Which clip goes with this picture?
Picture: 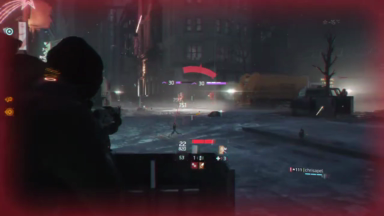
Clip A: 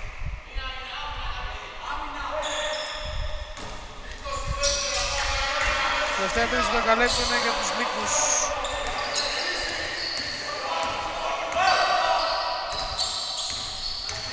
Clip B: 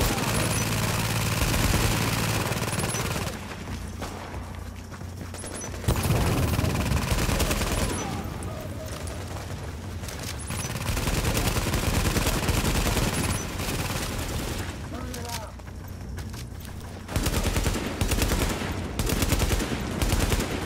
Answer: B